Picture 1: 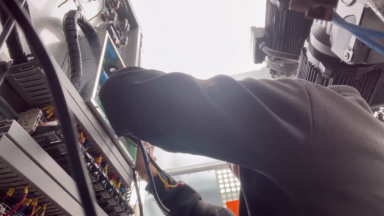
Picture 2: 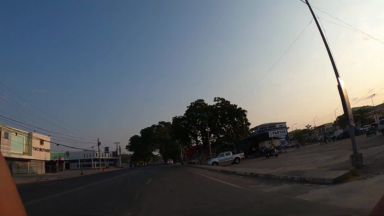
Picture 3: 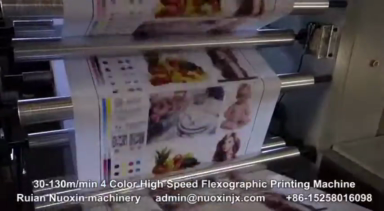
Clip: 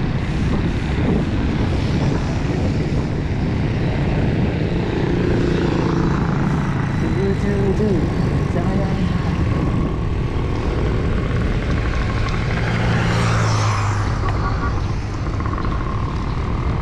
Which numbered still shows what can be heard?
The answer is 2